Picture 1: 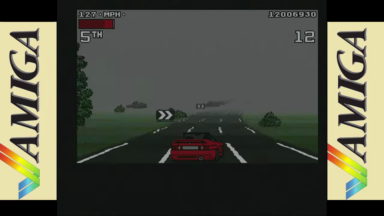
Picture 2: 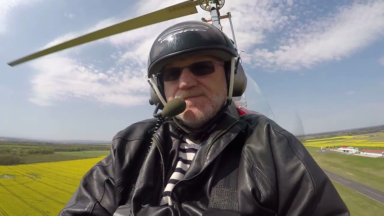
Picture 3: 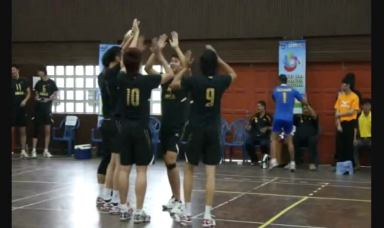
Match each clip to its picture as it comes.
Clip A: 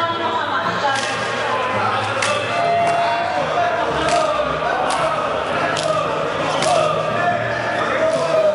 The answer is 3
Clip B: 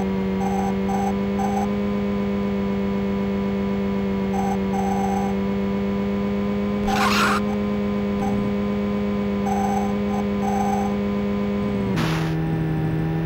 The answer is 1